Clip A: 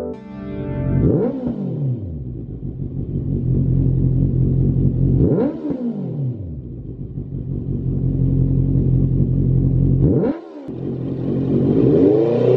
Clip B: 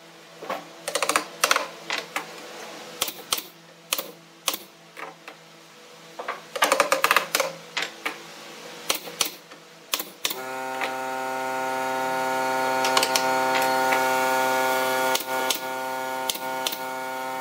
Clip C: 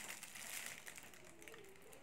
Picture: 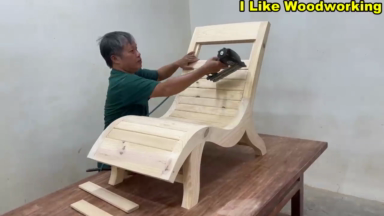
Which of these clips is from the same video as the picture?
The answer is B